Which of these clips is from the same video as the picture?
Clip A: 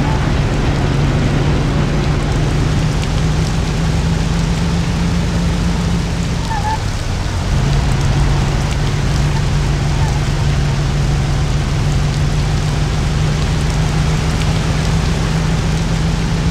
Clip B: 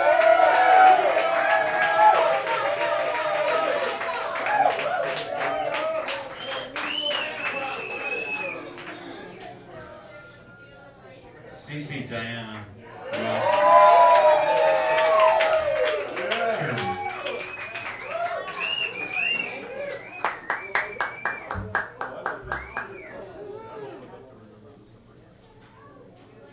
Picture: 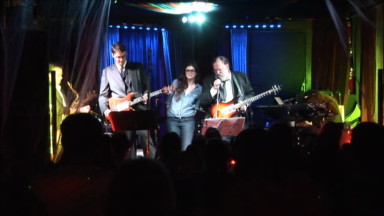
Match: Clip B